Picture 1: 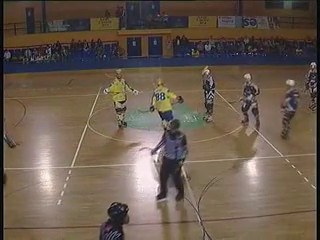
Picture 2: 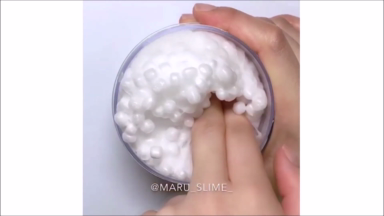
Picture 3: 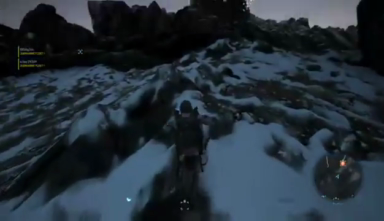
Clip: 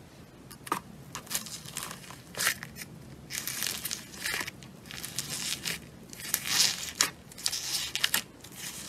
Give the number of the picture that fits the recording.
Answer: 2